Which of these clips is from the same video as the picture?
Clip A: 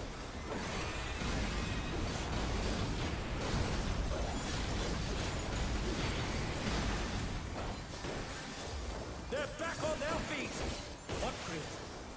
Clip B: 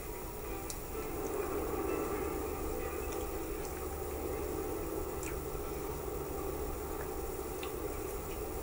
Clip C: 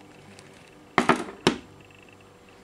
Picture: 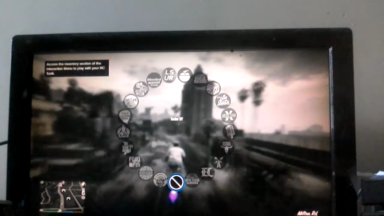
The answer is B